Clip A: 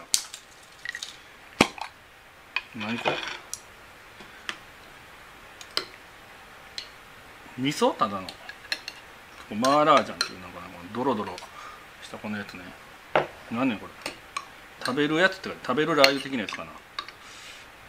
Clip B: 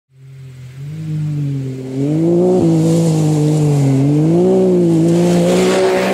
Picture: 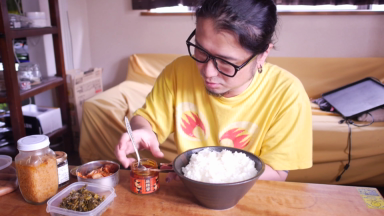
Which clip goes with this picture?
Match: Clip A